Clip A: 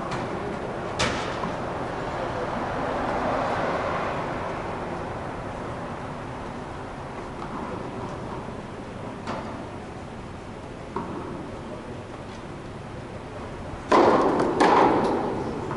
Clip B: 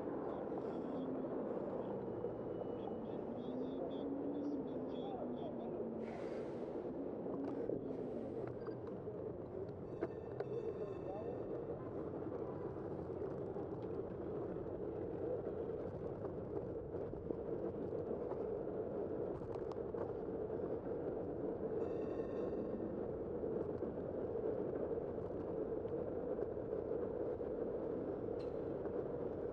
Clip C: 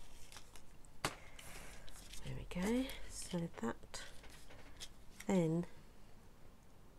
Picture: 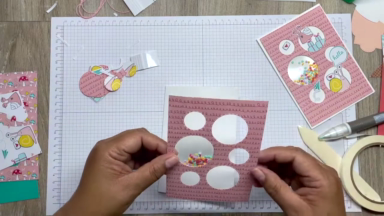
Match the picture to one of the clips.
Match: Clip C